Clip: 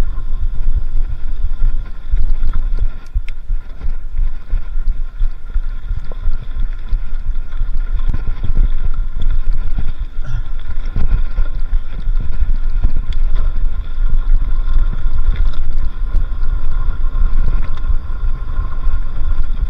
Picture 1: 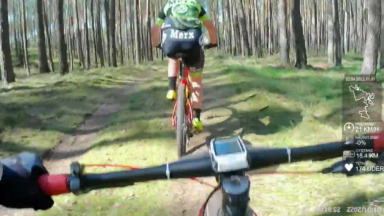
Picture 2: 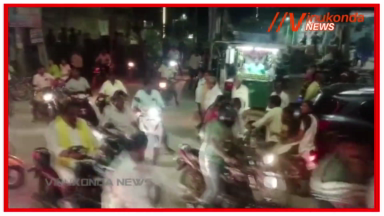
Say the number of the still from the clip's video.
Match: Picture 1